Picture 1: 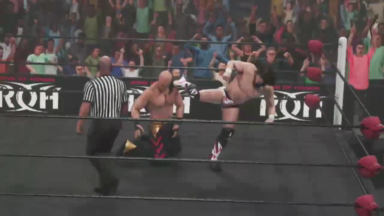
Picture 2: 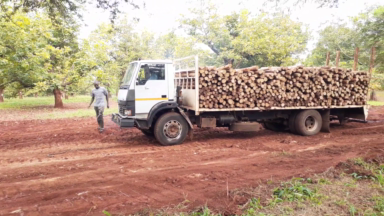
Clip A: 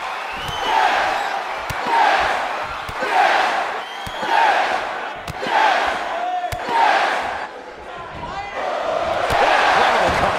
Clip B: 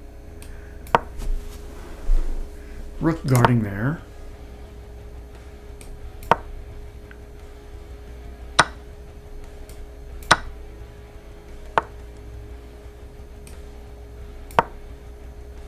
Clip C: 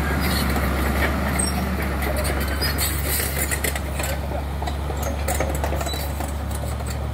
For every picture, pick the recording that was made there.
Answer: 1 A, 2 C